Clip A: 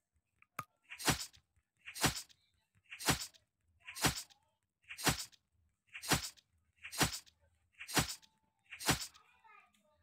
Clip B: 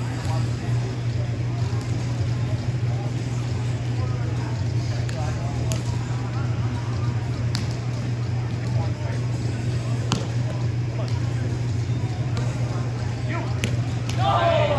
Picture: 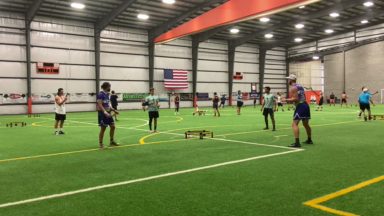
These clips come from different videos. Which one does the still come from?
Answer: B